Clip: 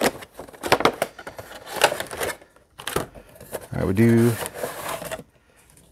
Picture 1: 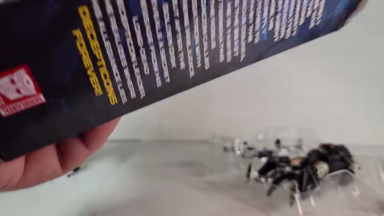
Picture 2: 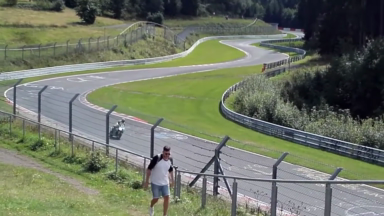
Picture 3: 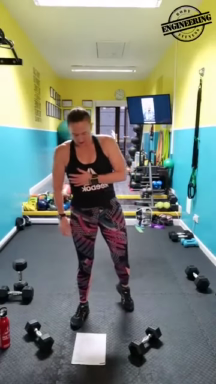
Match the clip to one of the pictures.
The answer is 1